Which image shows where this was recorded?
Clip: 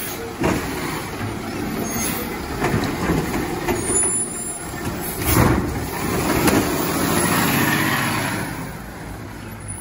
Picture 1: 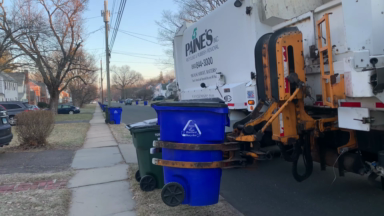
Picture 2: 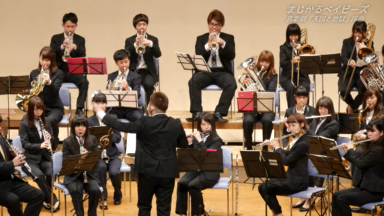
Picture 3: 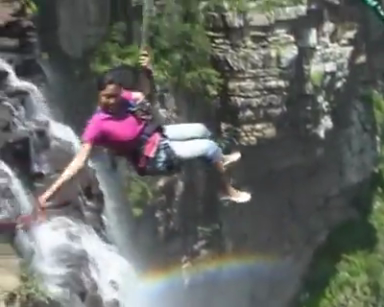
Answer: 1